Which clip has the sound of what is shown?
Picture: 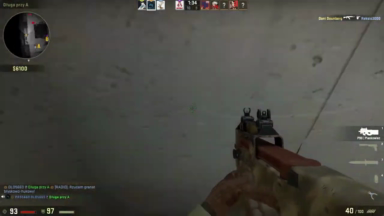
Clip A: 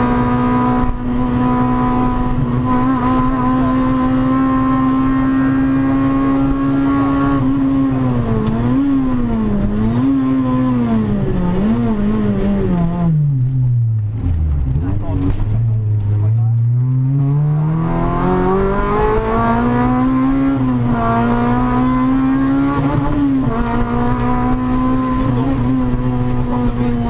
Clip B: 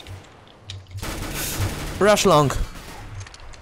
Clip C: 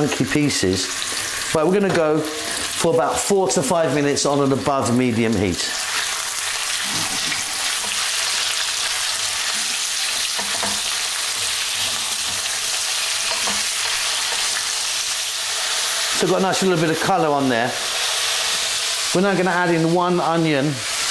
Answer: B